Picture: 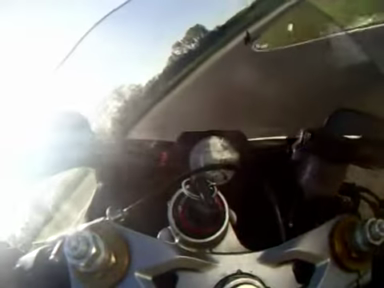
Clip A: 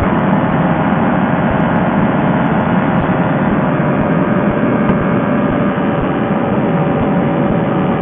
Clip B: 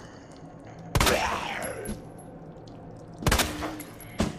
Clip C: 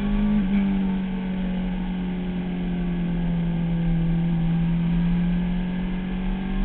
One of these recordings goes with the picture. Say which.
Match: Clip C